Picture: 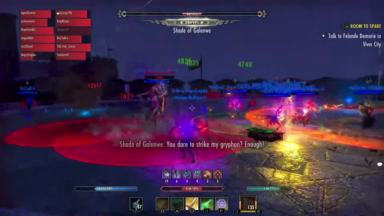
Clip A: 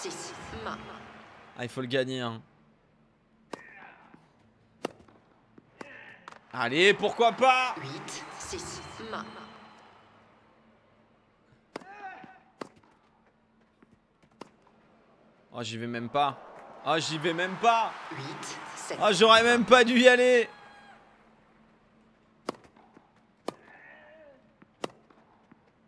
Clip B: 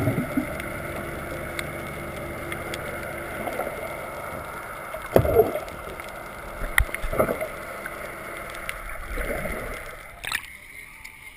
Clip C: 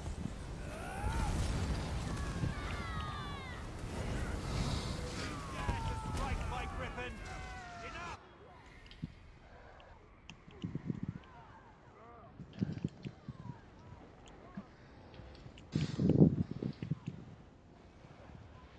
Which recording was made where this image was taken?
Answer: C